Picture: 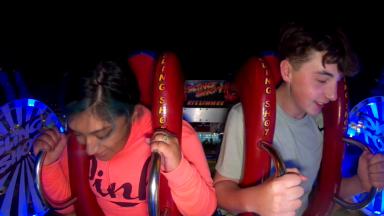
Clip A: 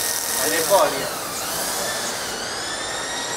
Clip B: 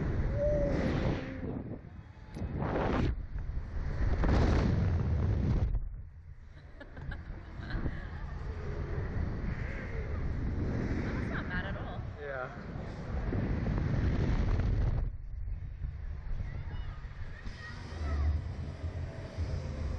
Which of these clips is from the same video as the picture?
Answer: B